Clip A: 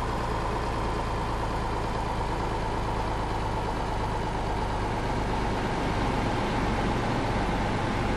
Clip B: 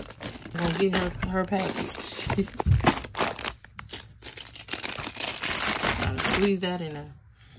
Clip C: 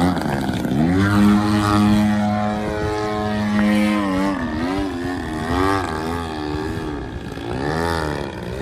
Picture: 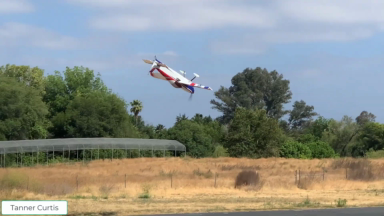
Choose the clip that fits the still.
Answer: C